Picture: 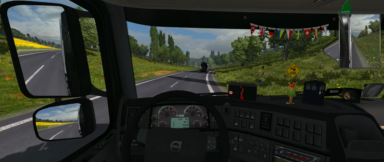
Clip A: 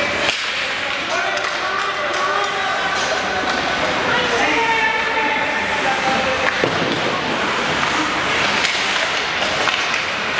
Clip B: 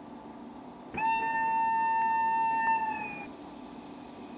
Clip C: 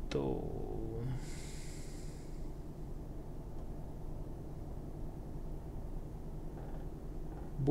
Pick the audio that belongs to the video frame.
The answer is C